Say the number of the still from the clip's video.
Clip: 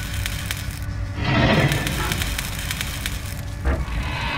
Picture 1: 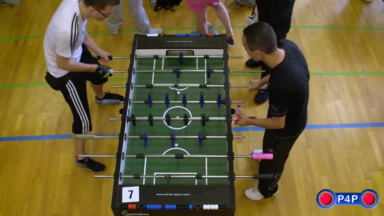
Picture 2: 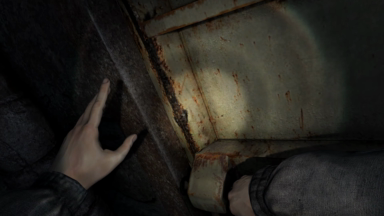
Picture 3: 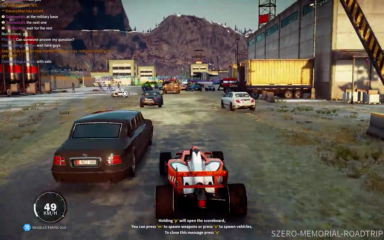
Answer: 2